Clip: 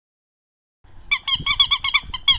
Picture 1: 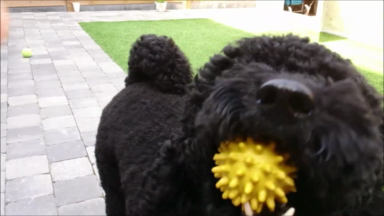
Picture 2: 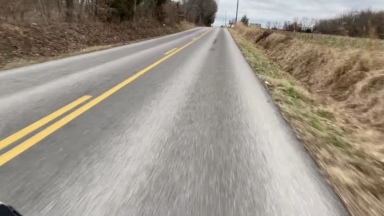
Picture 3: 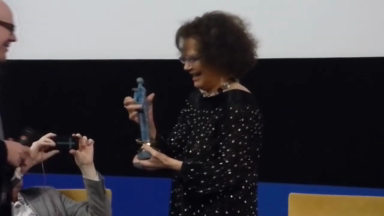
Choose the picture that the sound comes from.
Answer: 1